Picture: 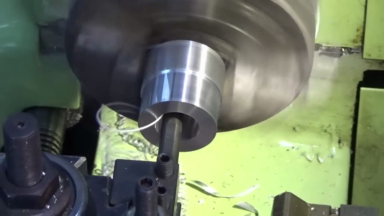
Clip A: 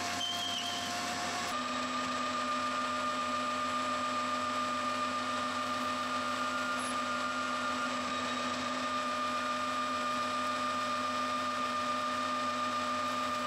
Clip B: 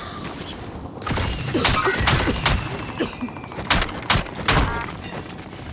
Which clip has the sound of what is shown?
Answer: A